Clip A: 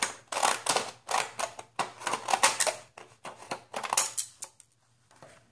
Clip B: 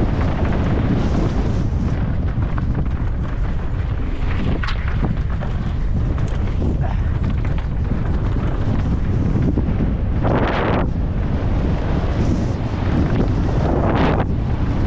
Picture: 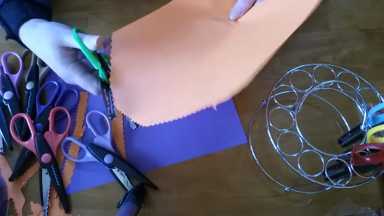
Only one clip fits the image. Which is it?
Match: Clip A